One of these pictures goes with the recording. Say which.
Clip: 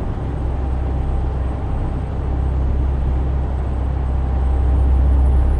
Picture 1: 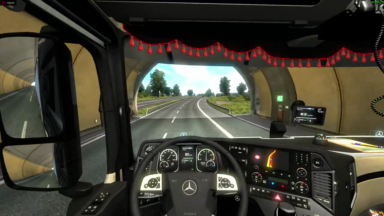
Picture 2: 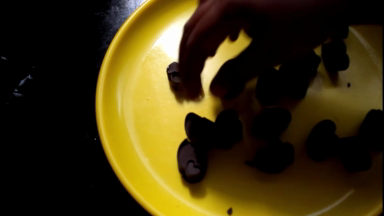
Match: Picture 1